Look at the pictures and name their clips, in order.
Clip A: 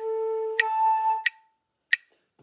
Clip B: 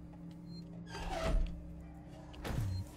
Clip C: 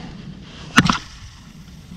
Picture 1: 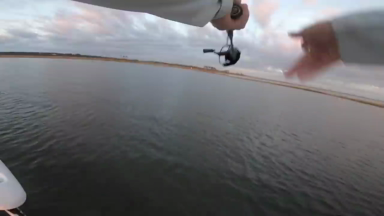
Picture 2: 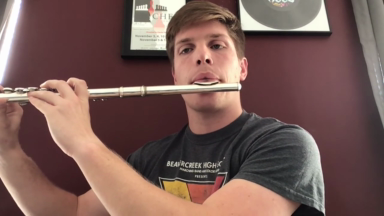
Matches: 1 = C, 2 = A